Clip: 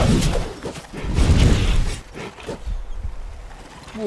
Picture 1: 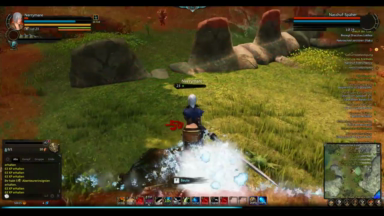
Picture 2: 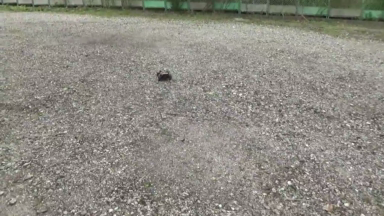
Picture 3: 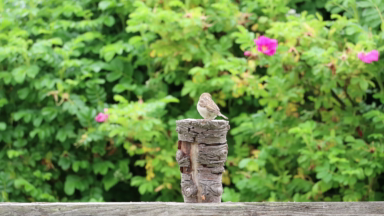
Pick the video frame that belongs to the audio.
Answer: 1